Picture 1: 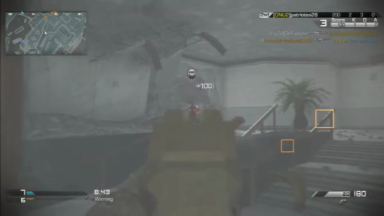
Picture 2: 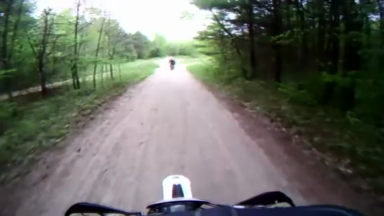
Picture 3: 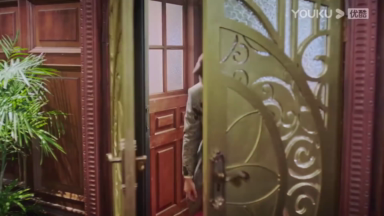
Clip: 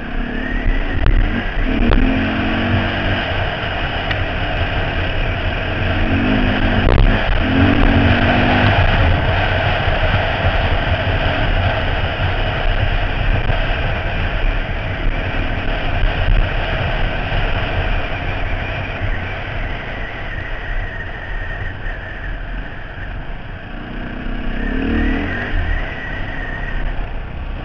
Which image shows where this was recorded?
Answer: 2